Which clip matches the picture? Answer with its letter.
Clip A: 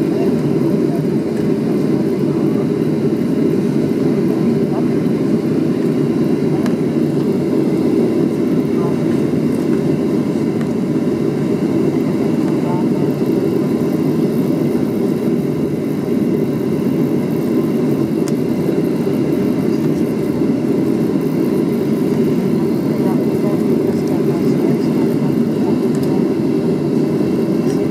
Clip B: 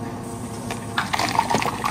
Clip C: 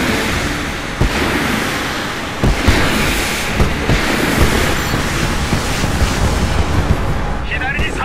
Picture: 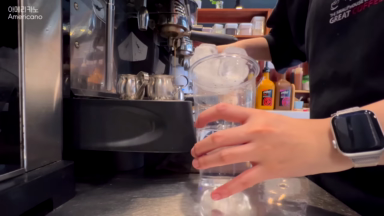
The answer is B